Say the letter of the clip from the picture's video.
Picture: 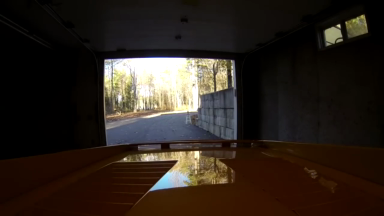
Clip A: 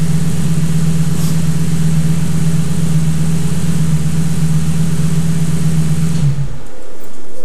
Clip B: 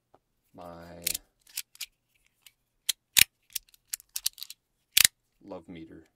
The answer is A